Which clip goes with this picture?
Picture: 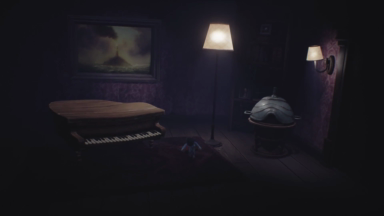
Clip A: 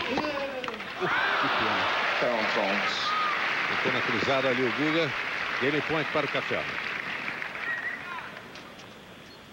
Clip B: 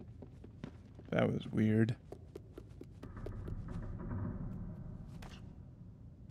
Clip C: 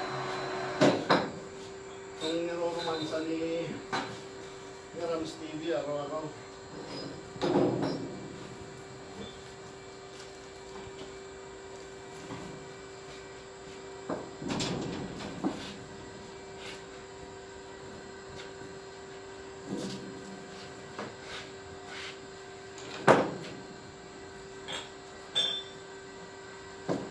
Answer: B